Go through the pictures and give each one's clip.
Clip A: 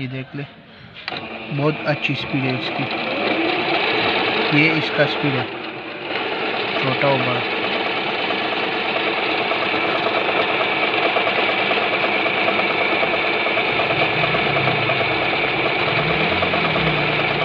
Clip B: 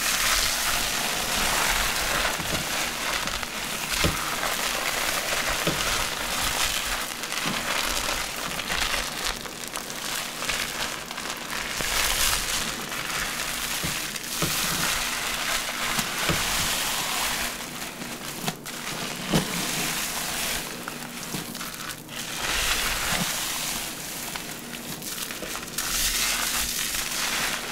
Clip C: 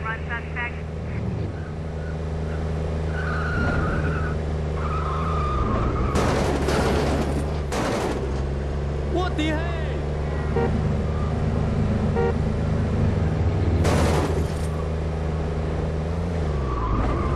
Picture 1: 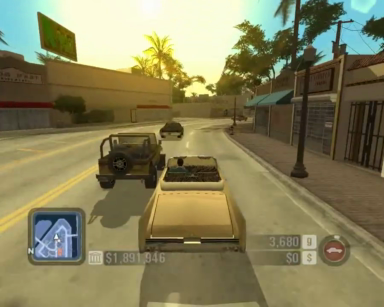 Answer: C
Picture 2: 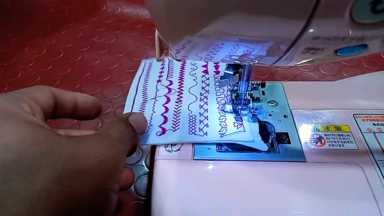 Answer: A